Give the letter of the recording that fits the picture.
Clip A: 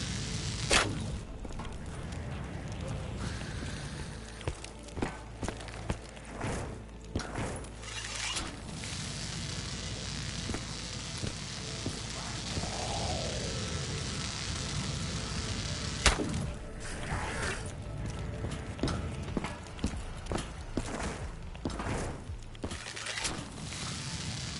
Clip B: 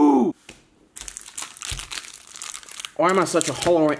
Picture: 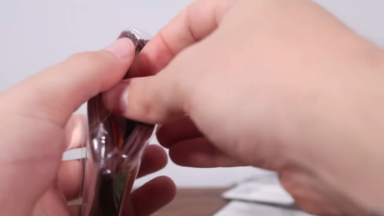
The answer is B